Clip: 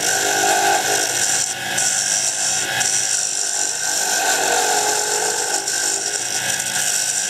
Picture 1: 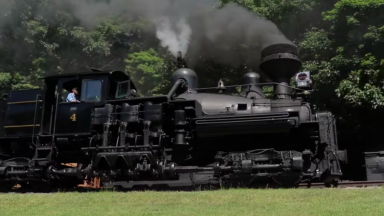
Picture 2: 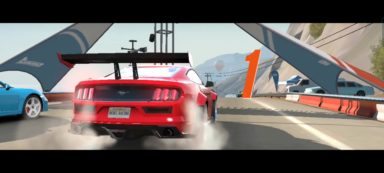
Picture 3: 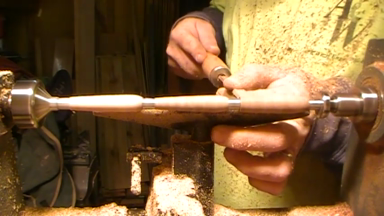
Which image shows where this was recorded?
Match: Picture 3